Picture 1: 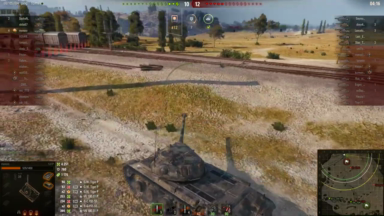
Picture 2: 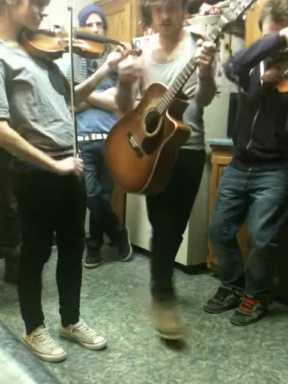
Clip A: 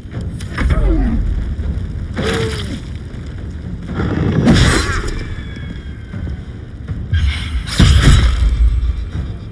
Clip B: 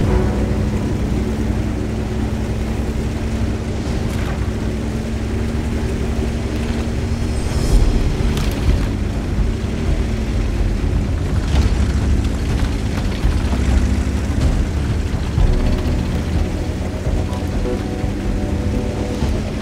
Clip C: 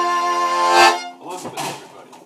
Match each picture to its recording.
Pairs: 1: B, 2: C